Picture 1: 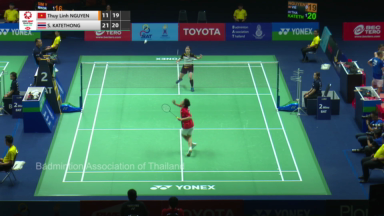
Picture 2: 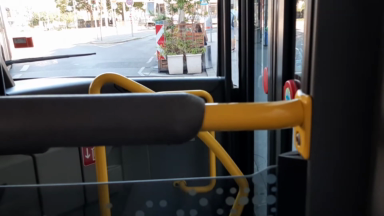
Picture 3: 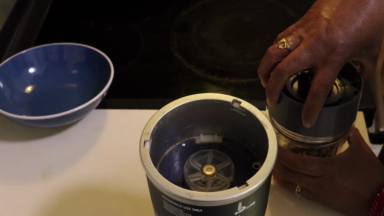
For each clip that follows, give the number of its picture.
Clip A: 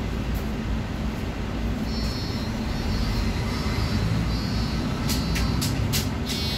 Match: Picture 2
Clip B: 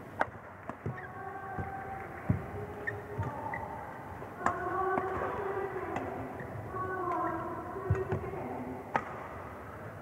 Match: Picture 1